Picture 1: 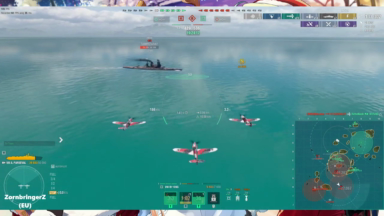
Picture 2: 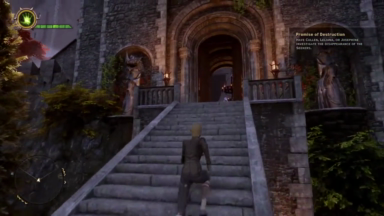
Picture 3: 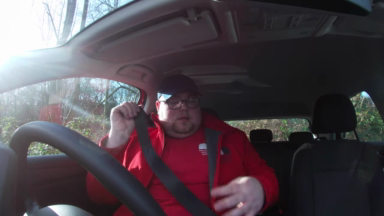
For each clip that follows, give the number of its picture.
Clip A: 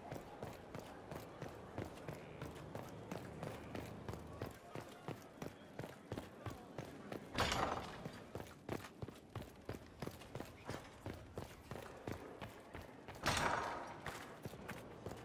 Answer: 2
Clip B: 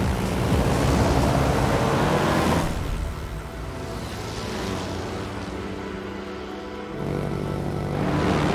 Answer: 1